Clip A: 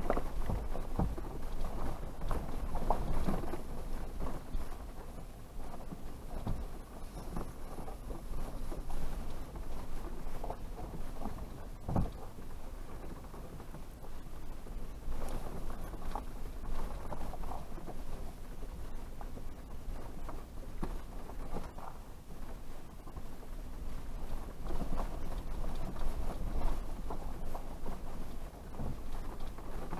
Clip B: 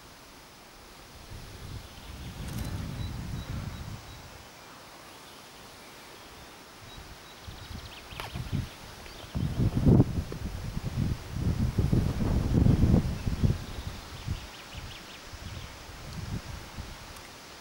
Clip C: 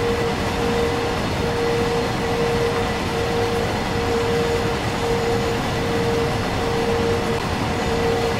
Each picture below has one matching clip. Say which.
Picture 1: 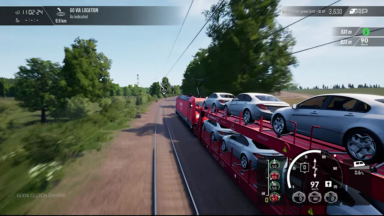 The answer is C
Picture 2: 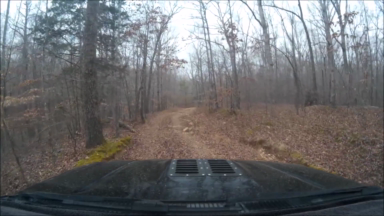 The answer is A